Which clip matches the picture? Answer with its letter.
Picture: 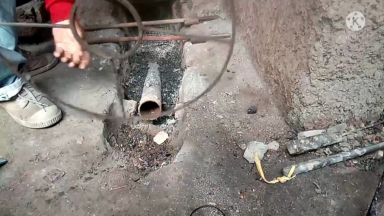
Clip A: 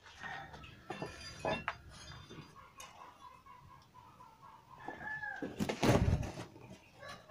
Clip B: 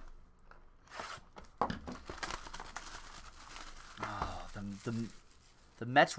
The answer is A